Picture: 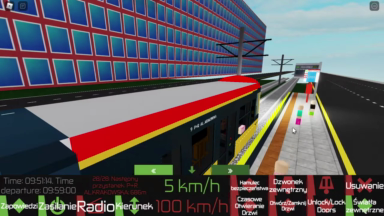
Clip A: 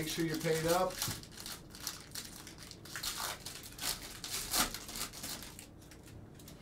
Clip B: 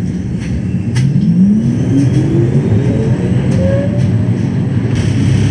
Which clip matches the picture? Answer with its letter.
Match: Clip B